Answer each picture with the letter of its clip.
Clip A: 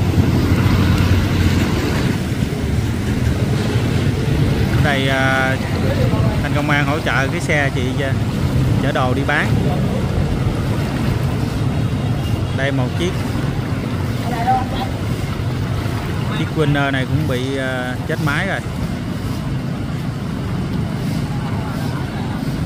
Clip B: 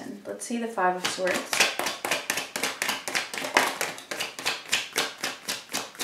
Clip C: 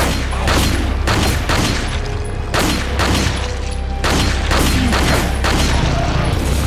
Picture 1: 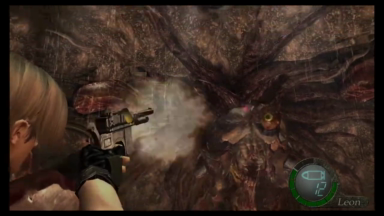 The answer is C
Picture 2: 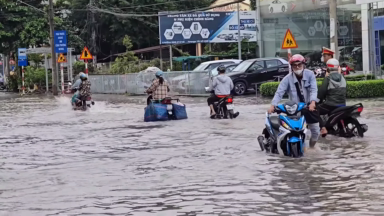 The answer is A